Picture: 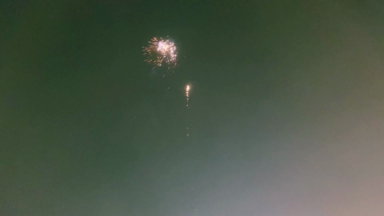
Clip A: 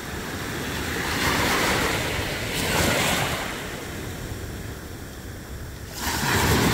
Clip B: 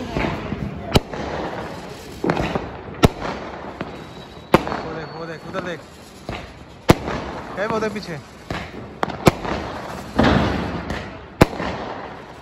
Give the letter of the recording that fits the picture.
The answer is B